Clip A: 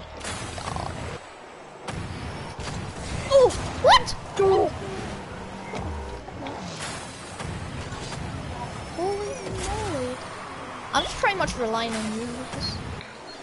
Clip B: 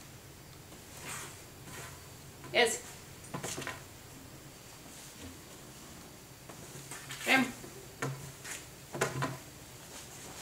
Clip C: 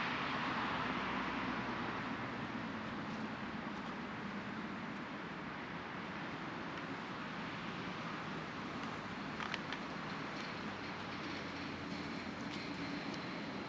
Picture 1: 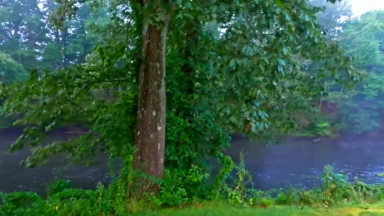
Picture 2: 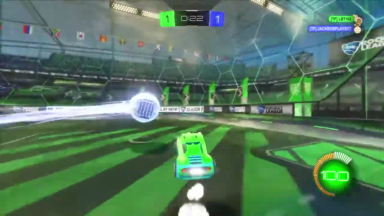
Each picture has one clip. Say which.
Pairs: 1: C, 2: A